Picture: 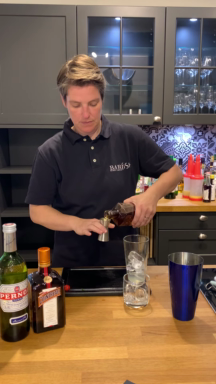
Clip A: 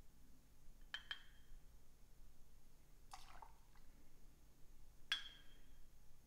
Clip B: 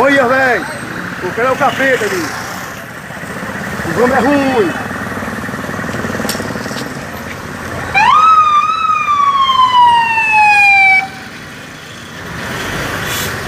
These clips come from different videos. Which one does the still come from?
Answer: A